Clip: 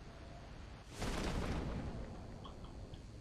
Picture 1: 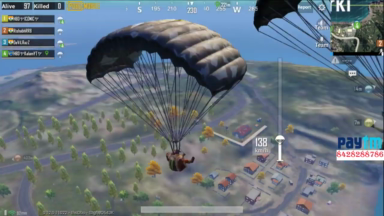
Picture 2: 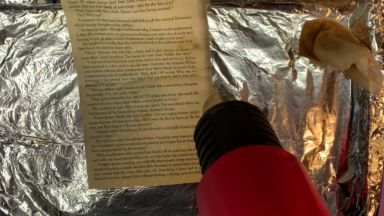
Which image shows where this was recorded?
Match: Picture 1